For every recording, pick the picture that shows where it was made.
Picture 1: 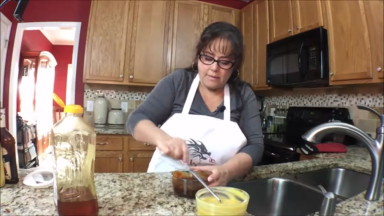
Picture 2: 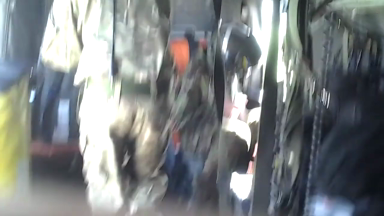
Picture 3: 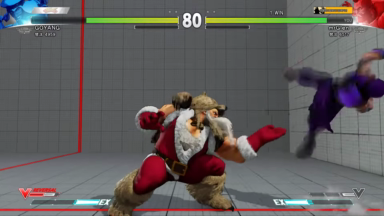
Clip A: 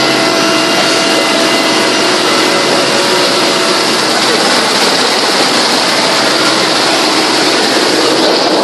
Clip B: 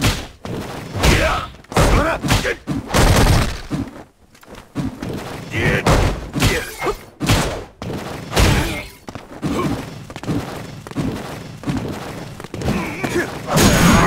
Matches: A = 2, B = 3